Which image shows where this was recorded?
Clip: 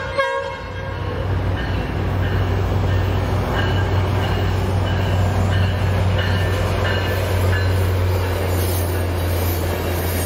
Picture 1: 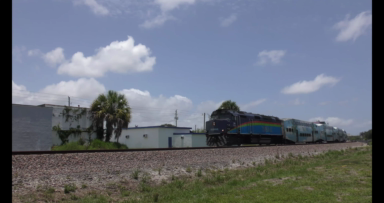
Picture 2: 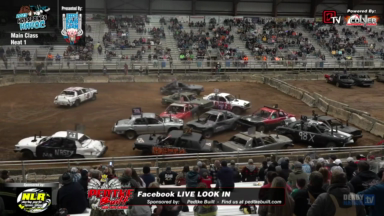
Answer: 1